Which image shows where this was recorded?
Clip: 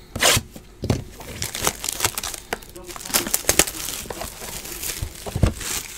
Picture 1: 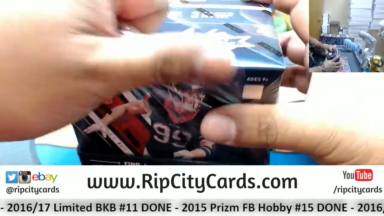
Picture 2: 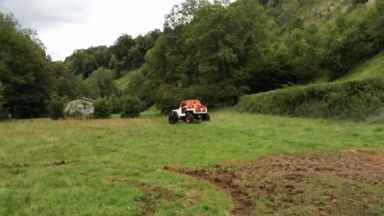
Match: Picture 1